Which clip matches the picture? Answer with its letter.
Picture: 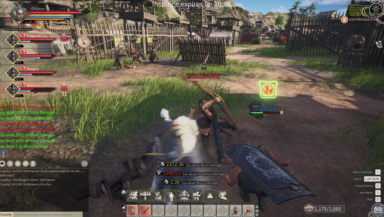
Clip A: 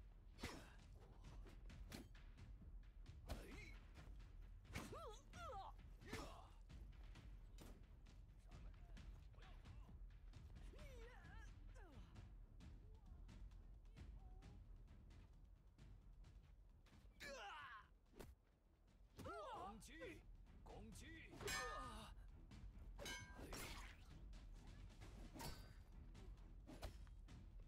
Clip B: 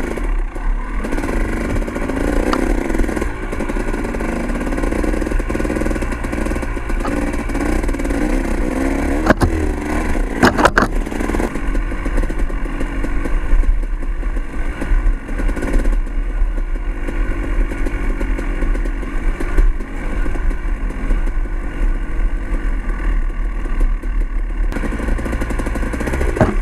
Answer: A